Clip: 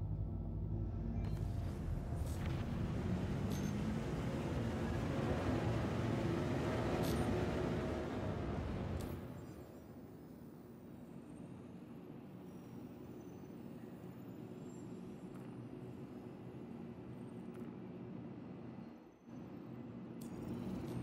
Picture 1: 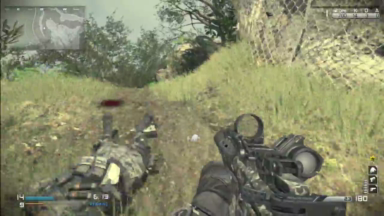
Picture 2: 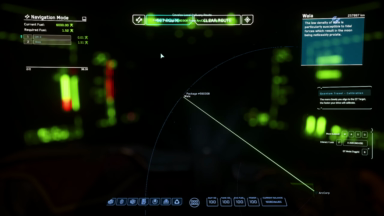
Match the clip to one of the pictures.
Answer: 2